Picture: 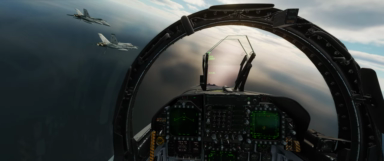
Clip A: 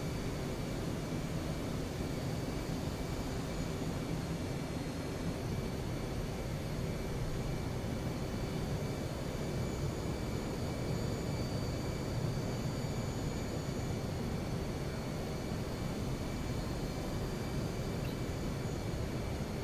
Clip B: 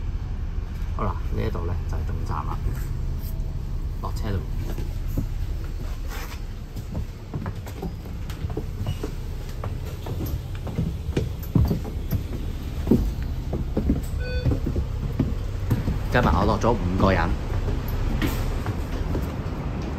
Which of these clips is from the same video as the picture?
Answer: A